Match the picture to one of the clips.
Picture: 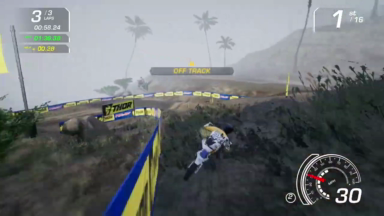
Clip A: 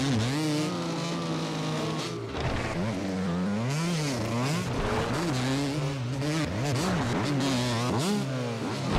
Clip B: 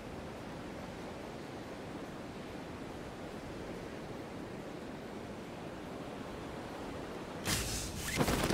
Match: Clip A